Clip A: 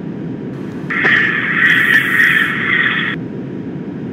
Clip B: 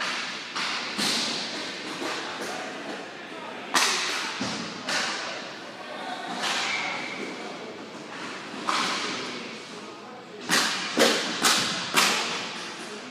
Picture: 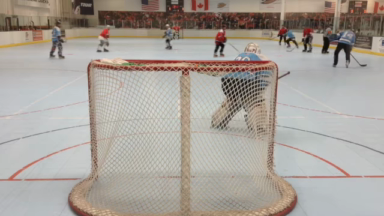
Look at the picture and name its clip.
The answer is B